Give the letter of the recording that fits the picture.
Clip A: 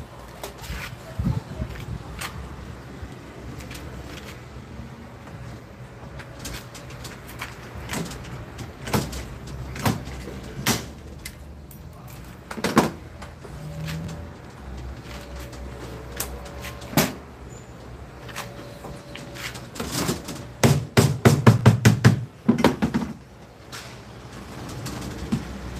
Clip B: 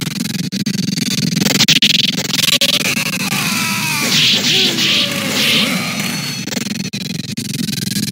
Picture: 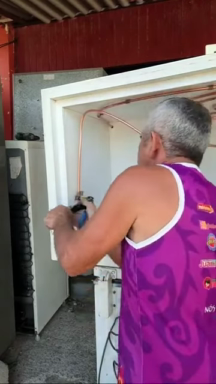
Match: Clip A